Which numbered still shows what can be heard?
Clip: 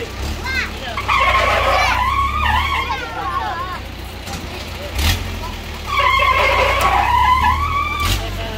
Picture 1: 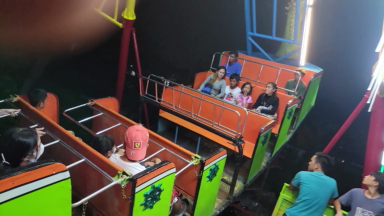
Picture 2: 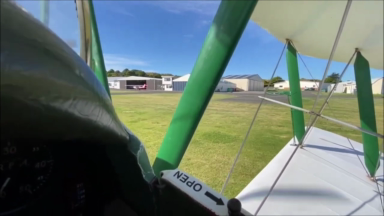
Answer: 1